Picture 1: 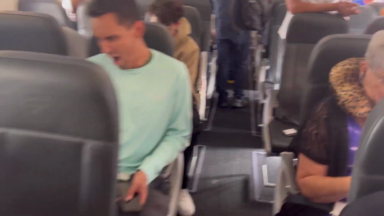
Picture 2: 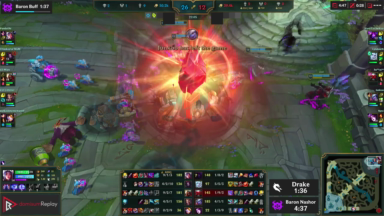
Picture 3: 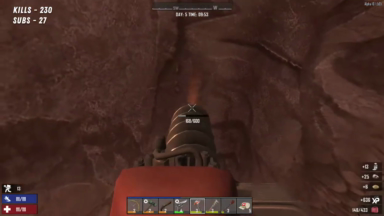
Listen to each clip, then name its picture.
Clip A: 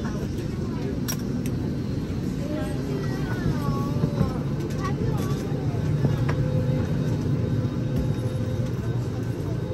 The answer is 1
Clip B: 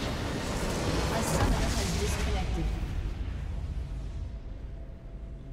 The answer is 2